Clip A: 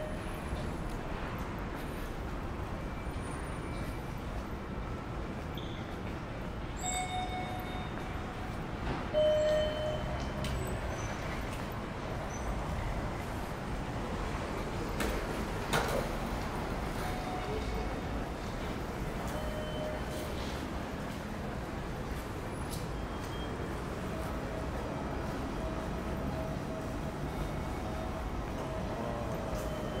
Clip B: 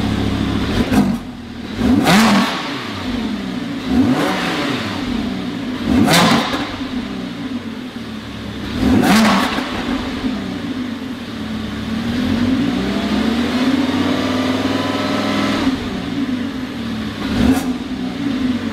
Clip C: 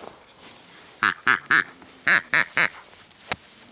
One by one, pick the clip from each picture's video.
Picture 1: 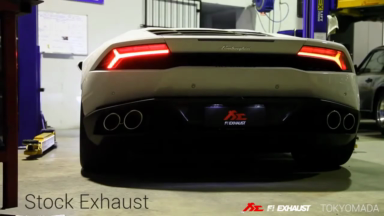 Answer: B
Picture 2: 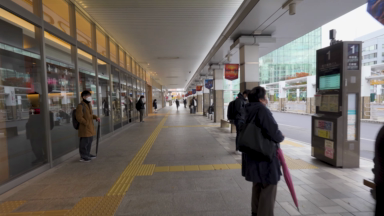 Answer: A